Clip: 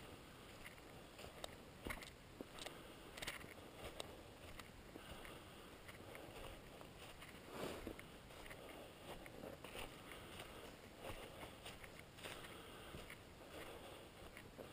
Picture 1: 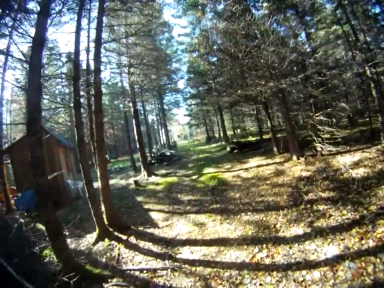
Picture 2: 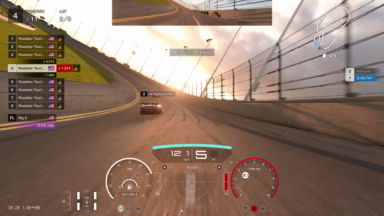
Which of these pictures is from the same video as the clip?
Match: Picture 1